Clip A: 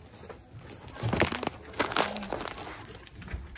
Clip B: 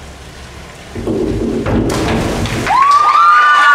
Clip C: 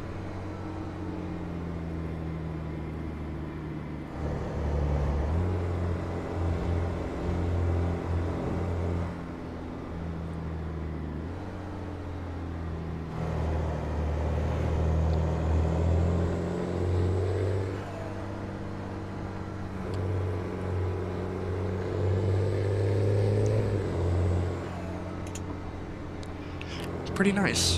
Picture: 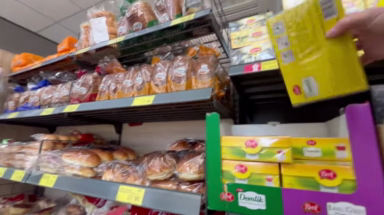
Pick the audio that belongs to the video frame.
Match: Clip A